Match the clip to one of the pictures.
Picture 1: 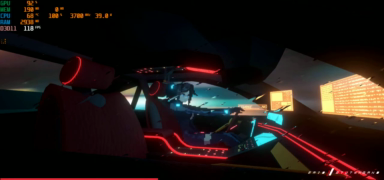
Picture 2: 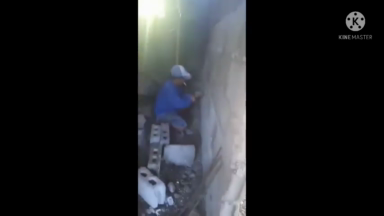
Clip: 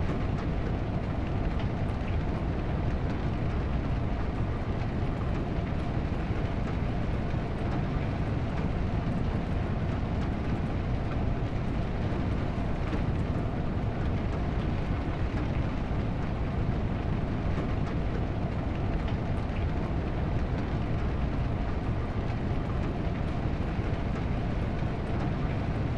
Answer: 1